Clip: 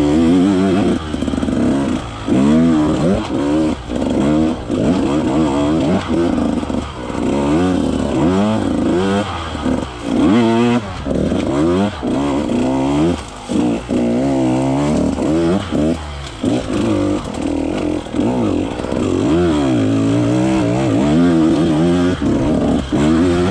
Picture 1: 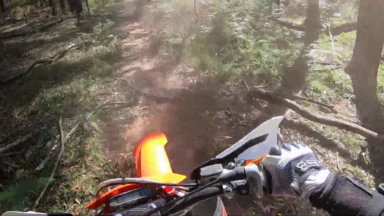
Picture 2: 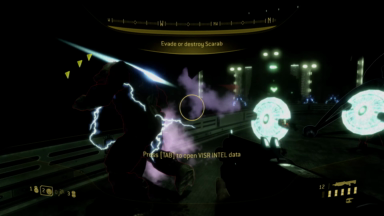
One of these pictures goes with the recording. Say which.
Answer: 1